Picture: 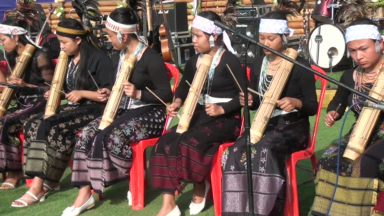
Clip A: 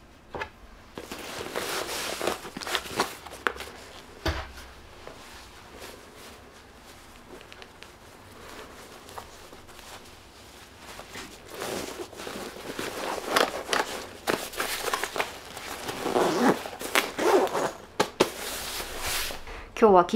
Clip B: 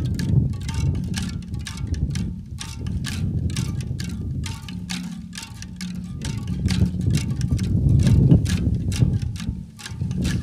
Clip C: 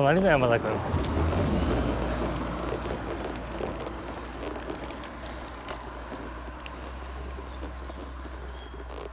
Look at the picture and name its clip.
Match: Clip B